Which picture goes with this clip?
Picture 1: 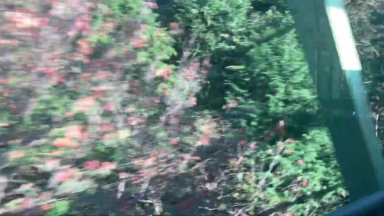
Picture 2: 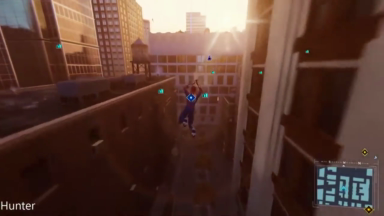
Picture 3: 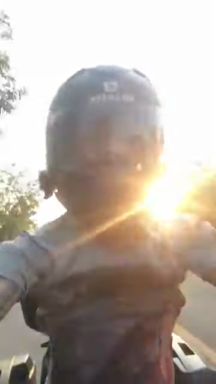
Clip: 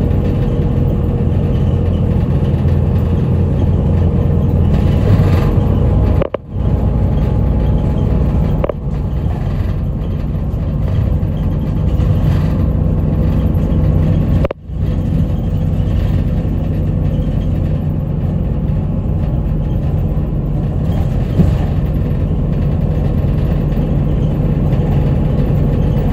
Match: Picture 1